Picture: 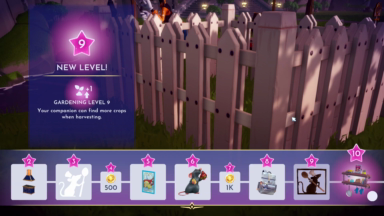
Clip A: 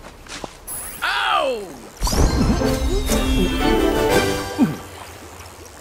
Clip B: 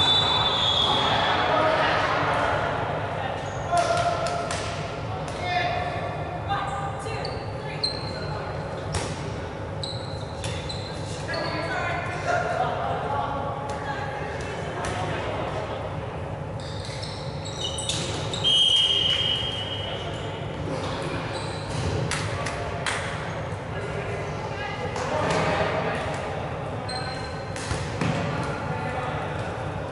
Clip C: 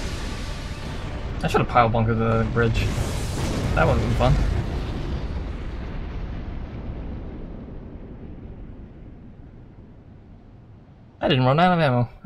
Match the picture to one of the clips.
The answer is A